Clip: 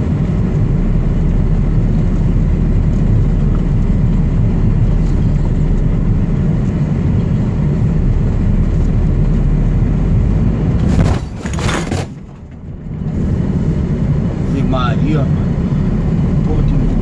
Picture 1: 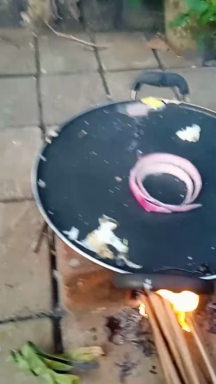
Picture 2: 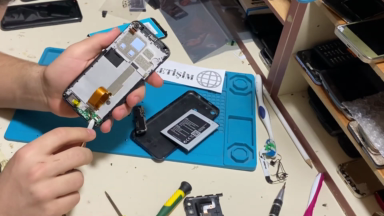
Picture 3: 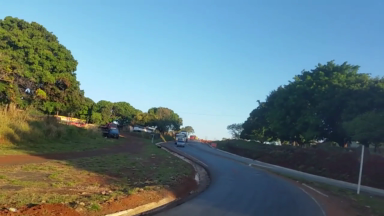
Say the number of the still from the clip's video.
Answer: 3